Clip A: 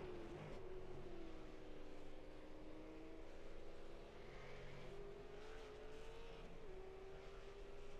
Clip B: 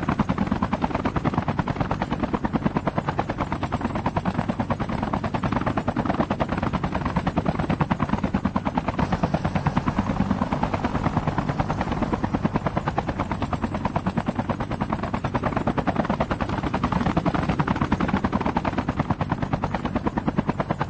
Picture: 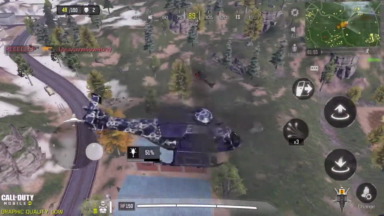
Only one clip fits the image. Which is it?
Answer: B